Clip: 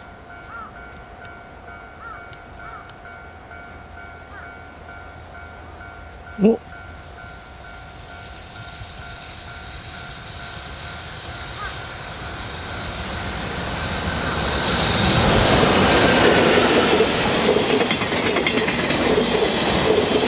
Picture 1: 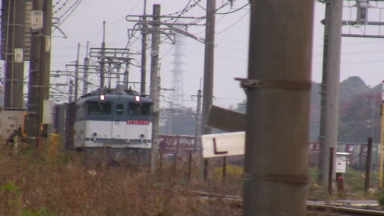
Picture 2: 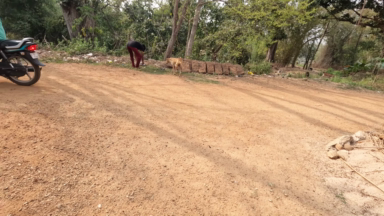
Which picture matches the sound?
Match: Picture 1